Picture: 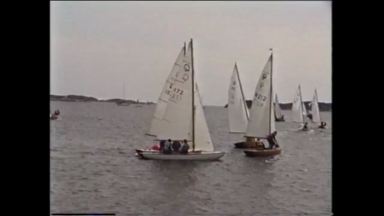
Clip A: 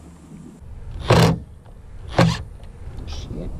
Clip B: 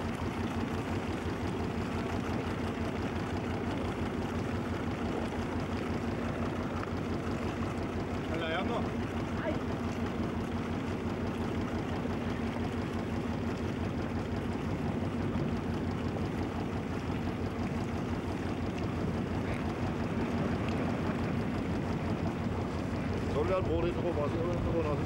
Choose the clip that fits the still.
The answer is B